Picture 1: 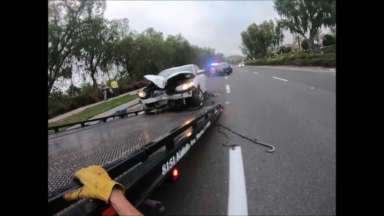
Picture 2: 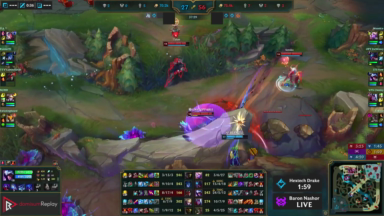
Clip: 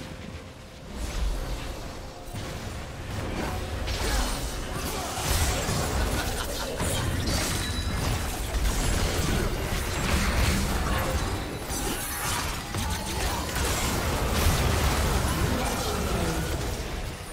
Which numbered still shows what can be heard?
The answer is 2